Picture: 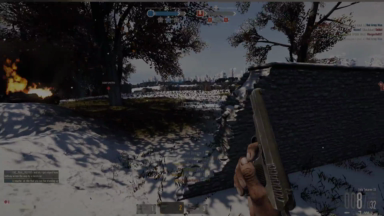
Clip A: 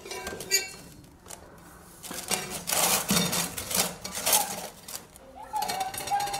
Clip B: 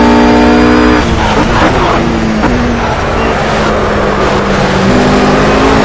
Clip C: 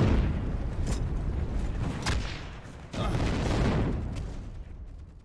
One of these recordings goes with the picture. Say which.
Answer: C